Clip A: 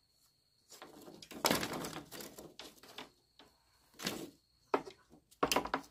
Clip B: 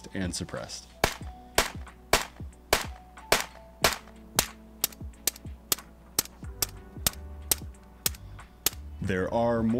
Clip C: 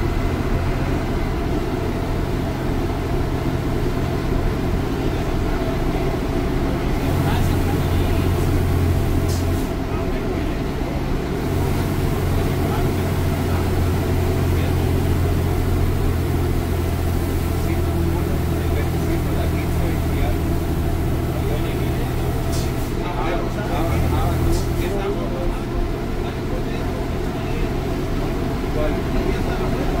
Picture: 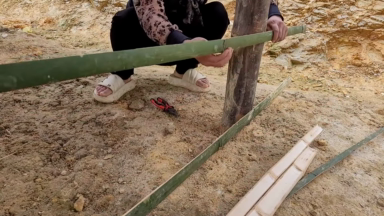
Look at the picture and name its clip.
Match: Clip A